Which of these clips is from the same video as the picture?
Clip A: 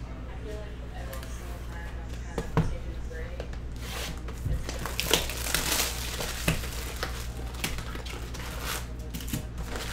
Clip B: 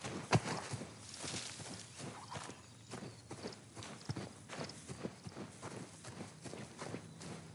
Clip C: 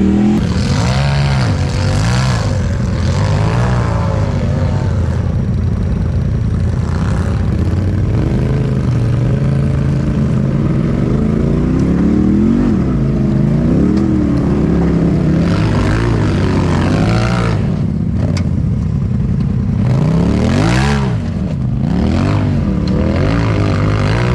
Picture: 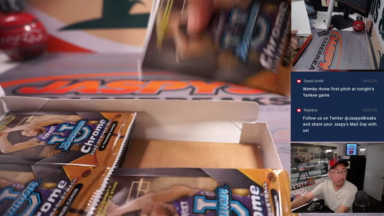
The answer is A